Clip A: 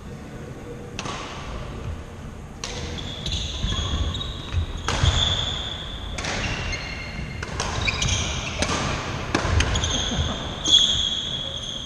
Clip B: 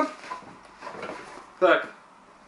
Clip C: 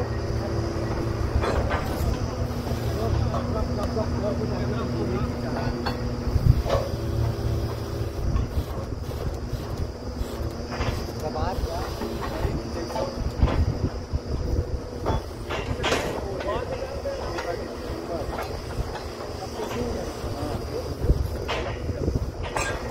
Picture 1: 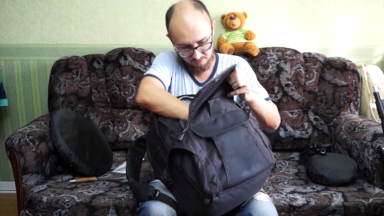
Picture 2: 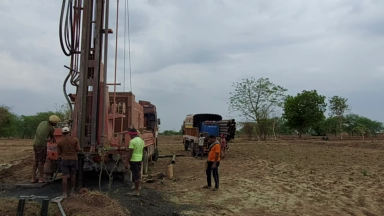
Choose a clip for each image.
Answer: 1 B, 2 C